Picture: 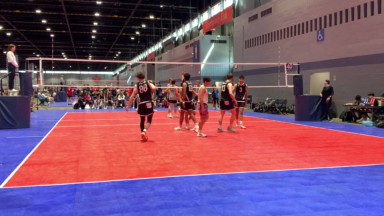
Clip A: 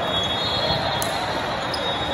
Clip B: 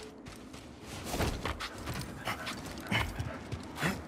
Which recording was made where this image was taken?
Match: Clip A